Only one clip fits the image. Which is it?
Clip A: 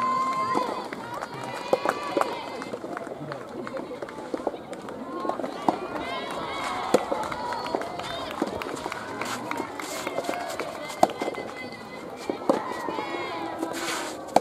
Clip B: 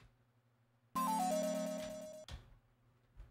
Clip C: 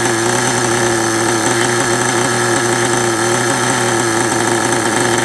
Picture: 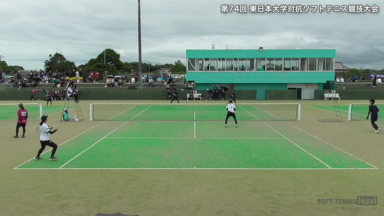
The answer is A